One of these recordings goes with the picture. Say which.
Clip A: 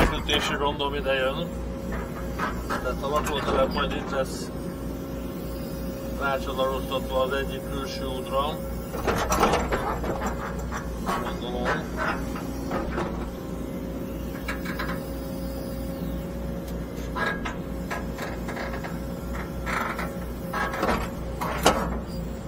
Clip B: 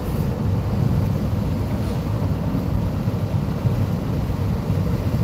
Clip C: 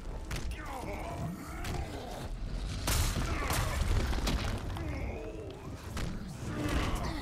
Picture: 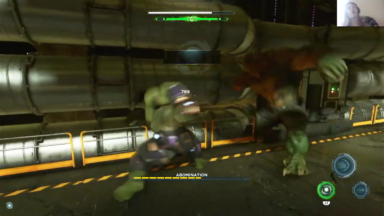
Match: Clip C